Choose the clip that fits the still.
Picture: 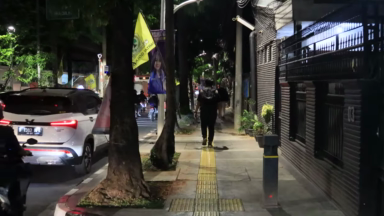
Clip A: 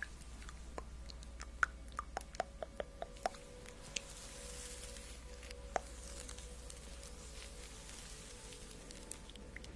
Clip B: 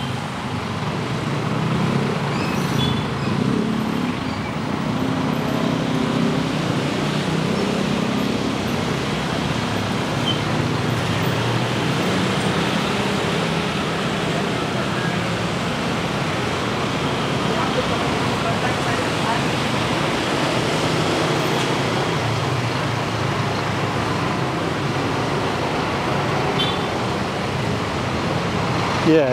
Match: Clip B